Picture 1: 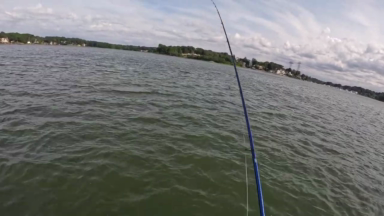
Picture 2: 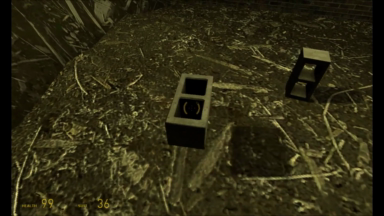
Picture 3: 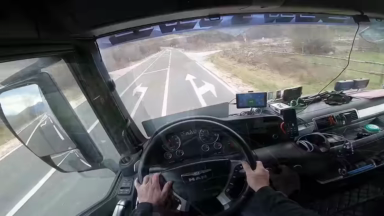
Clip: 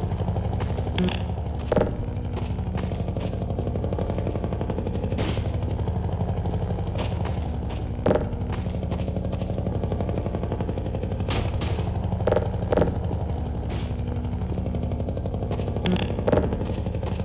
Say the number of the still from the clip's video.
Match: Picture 2